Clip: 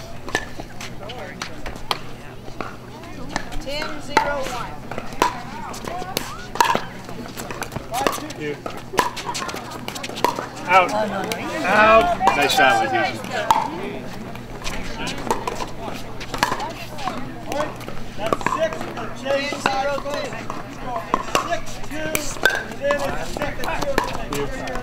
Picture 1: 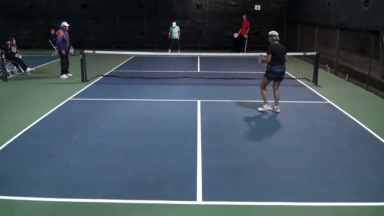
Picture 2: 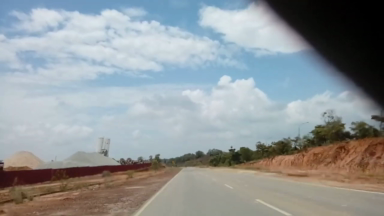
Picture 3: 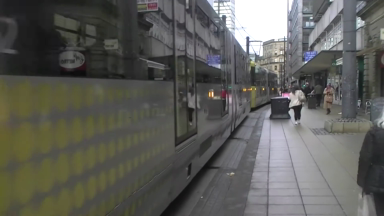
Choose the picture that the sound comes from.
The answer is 1